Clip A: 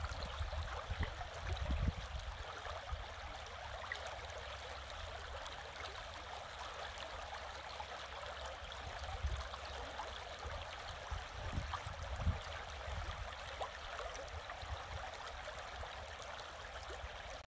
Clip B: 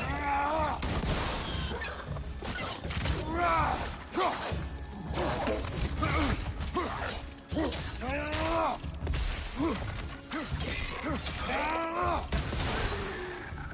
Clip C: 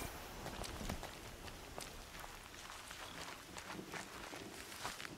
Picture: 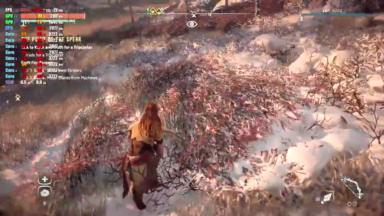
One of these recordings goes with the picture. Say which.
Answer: C